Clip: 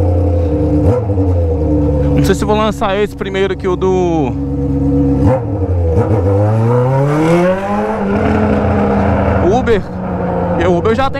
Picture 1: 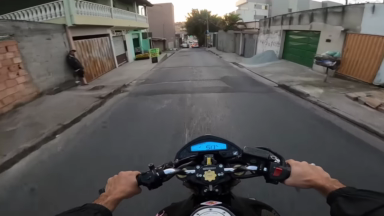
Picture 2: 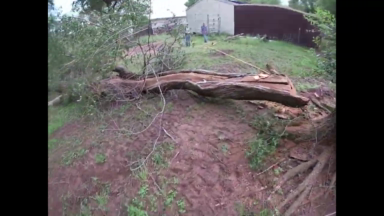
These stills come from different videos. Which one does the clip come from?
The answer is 1